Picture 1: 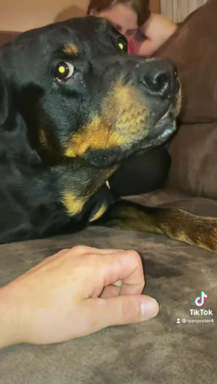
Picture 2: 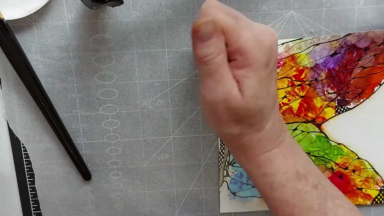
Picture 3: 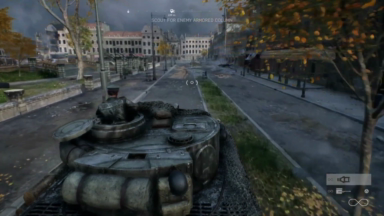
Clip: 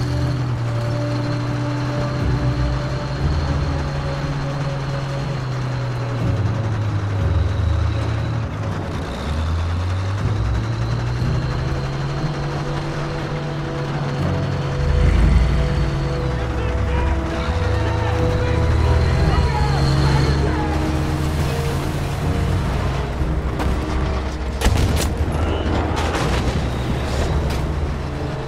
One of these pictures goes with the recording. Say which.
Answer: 3